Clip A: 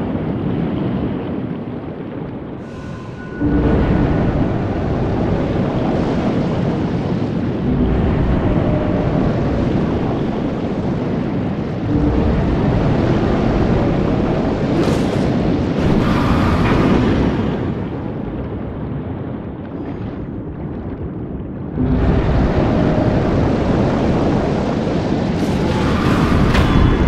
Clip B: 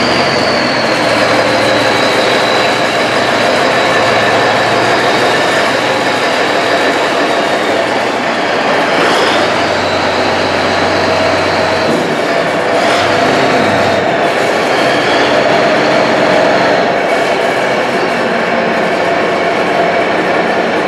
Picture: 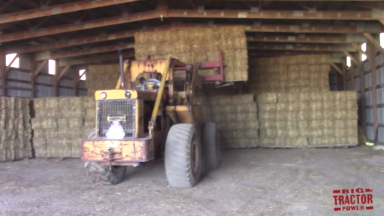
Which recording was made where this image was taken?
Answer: B